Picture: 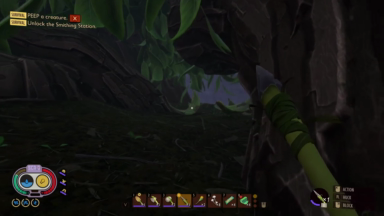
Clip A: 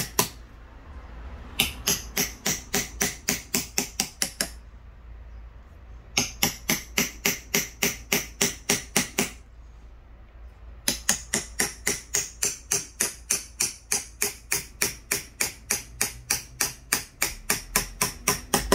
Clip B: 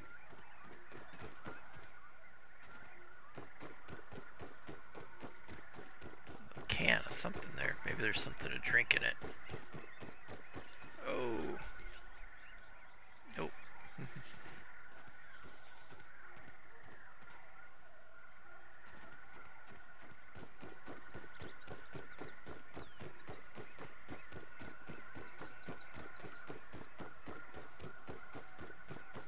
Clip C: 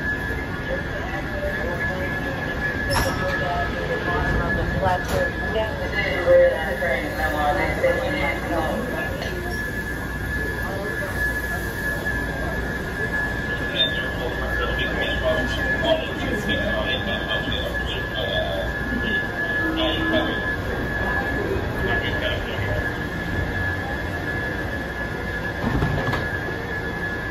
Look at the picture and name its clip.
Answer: B